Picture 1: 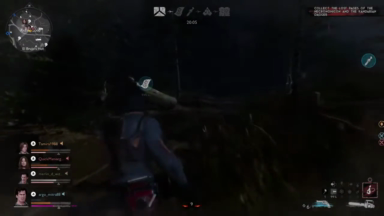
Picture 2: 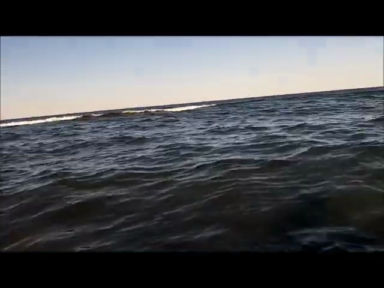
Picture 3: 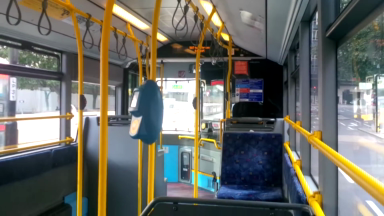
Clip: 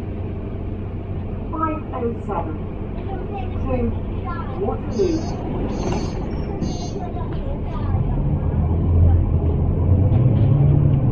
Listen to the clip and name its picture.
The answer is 3